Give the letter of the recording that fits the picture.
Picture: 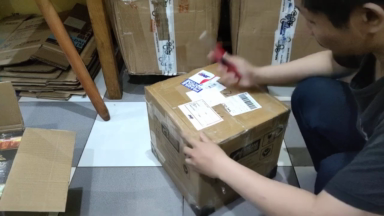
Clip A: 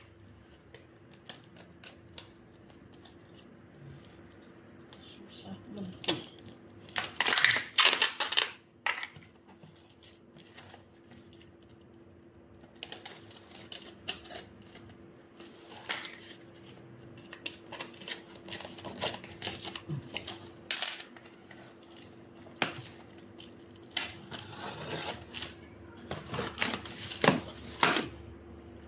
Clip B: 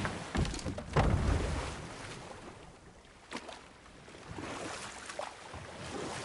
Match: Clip A